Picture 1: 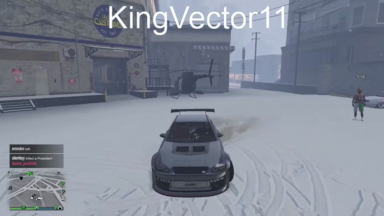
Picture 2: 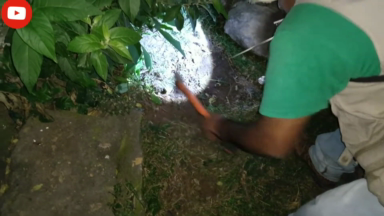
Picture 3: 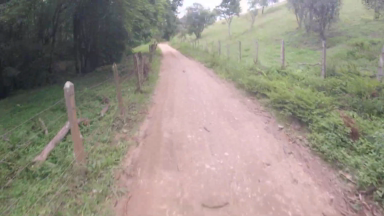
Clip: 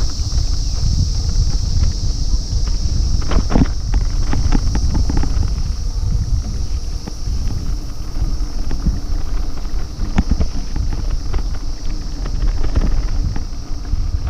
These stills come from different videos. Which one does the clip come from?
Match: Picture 3